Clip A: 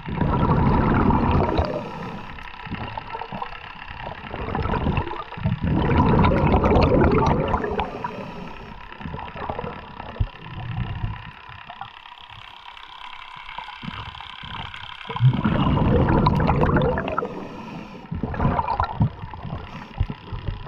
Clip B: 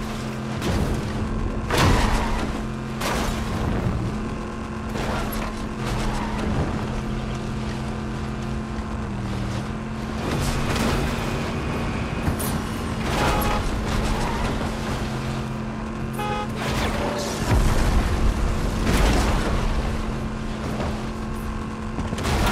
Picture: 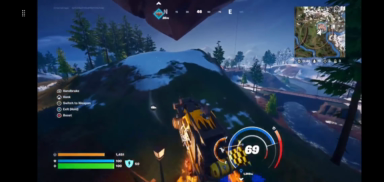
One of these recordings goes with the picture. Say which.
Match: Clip B